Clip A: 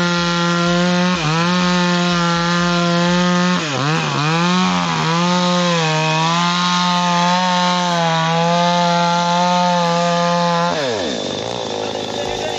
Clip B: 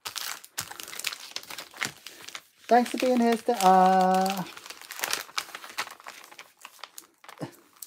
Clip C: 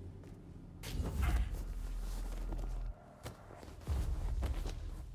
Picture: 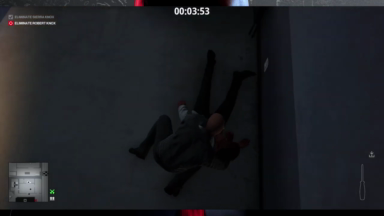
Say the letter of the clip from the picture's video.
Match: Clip C